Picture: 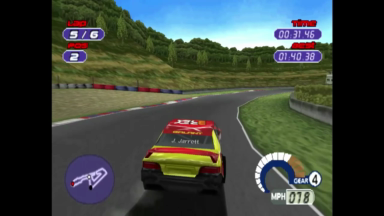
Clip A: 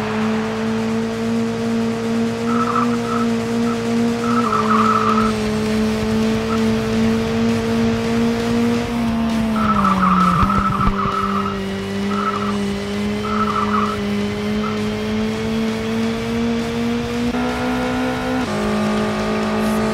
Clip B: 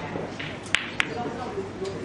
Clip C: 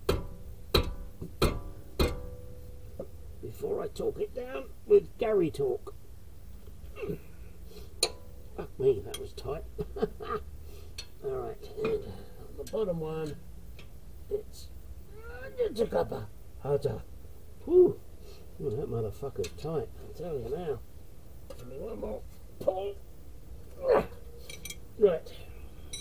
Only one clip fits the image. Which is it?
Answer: A